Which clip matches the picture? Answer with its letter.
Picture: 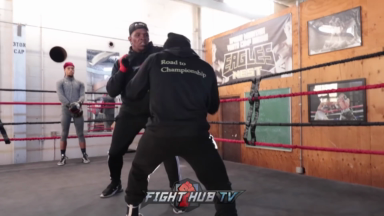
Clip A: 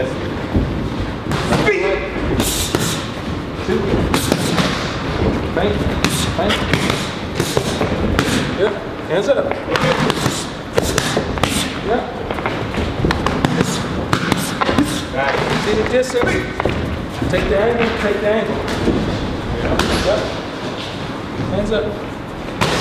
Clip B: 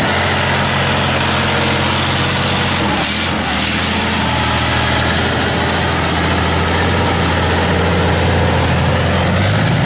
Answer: A